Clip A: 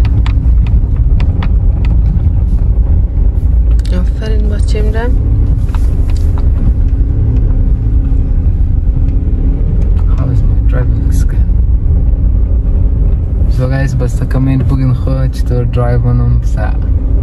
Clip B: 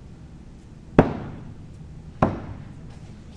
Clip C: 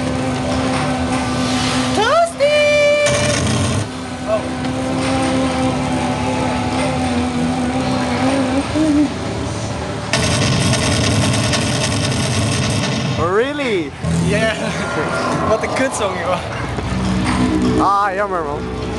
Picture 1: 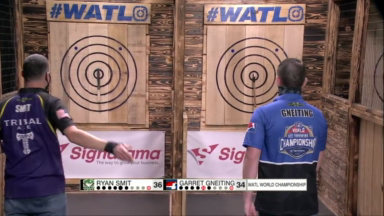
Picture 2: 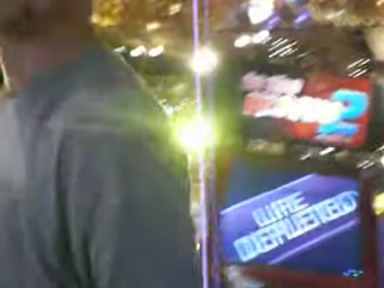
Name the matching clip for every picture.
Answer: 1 B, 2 C